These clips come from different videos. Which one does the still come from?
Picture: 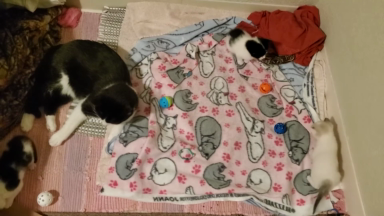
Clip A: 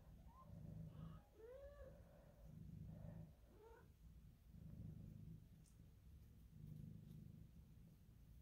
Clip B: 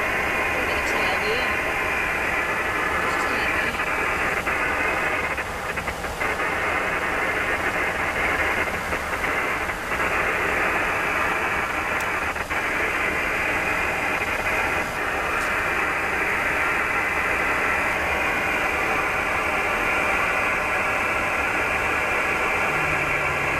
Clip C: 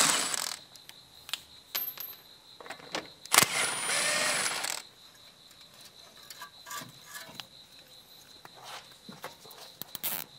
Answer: A